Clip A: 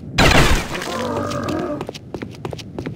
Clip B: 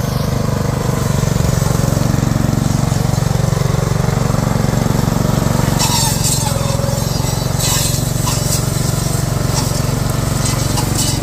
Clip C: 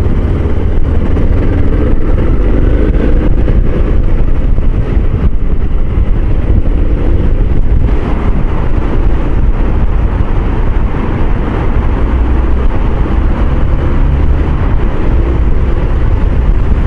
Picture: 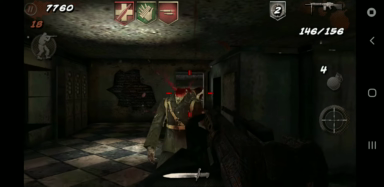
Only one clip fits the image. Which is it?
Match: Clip A